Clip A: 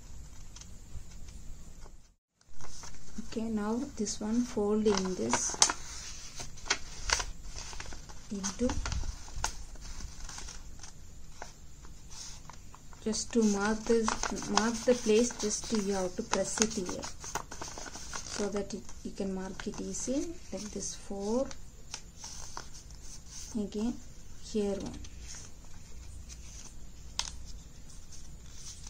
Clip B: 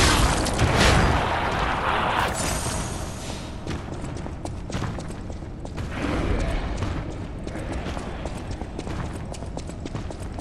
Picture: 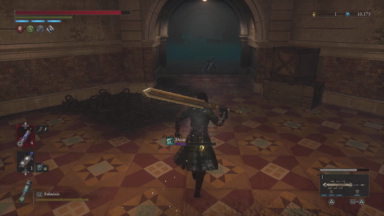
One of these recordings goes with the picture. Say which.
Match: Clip B